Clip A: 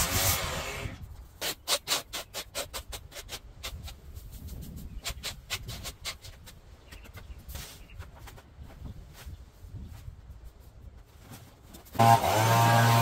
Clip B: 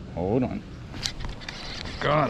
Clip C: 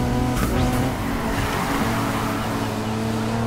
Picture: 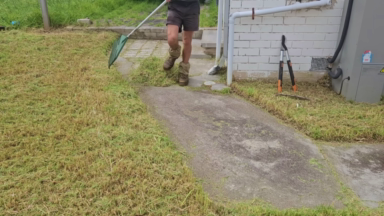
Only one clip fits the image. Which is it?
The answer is A